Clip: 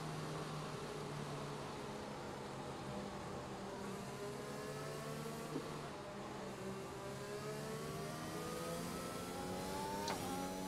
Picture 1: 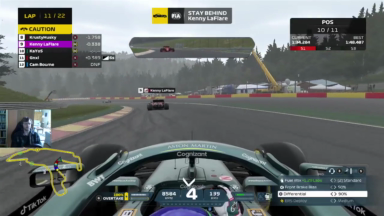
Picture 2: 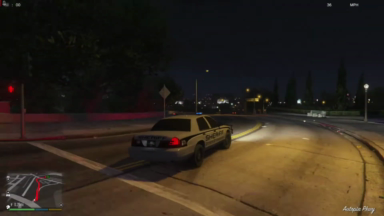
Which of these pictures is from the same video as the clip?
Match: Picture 1